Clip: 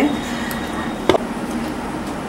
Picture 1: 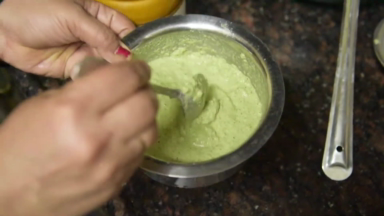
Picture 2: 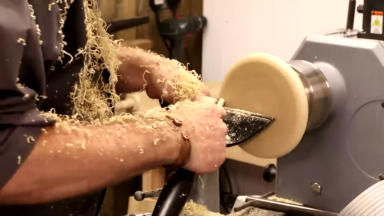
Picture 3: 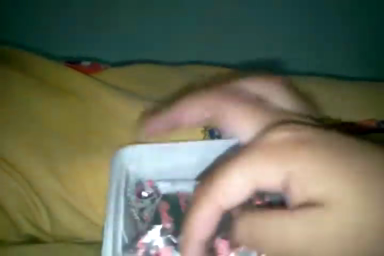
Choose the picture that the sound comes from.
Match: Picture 1